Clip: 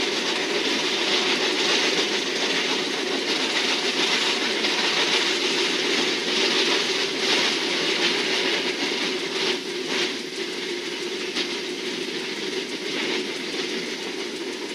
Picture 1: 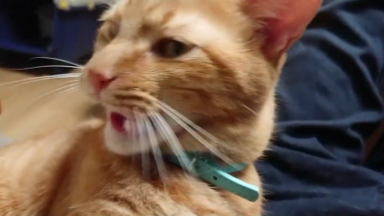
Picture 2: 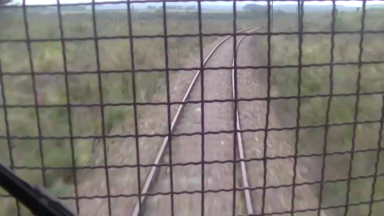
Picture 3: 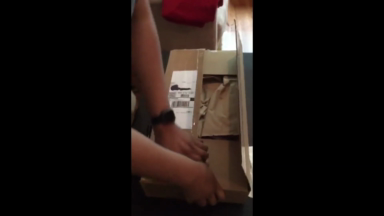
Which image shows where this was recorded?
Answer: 2